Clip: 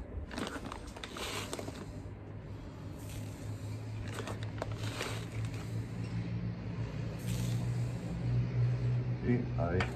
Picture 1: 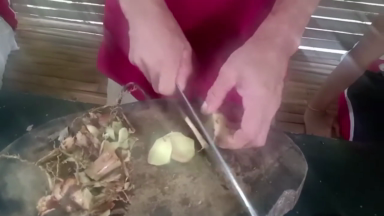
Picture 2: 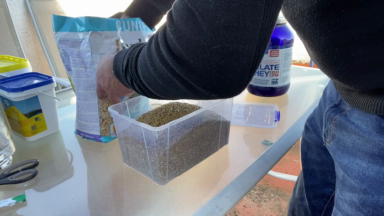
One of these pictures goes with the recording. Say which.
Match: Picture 2